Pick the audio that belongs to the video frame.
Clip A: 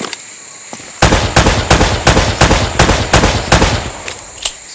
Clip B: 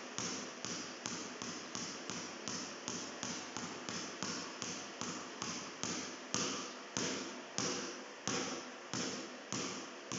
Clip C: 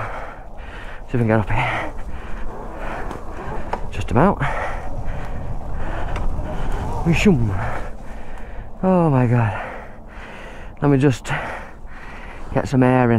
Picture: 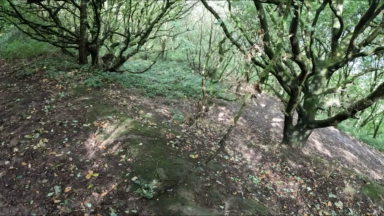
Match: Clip C